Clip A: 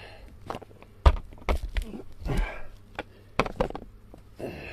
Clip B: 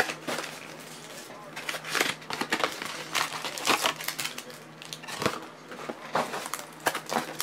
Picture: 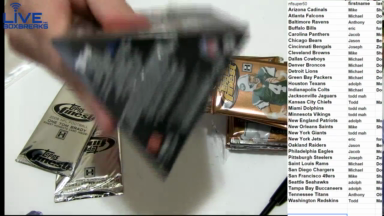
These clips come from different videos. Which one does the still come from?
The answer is B